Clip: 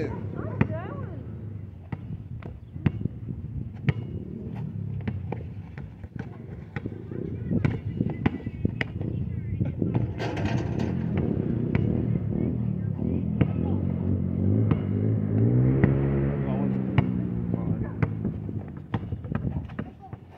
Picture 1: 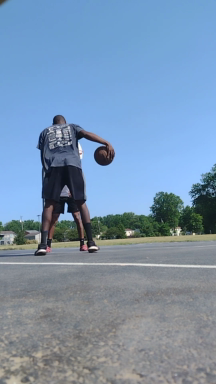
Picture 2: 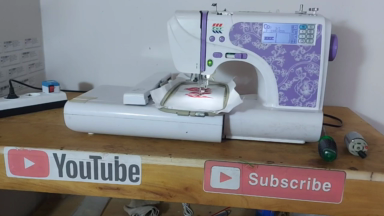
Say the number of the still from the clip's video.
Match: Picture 1